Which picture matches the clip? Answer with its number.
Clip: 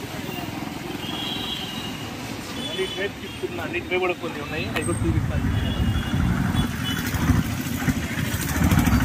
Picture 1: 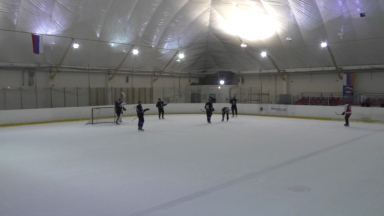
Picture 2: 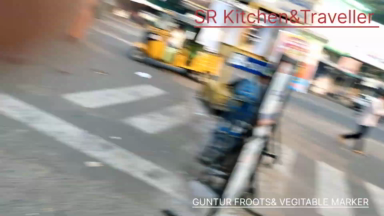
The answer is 2